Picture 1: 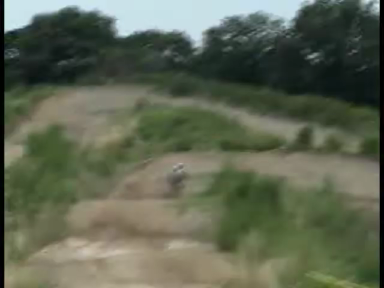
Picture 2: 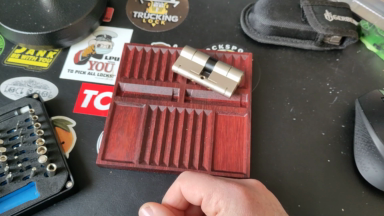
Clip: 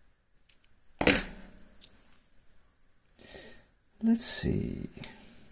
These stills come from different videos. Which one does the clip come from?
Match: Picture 2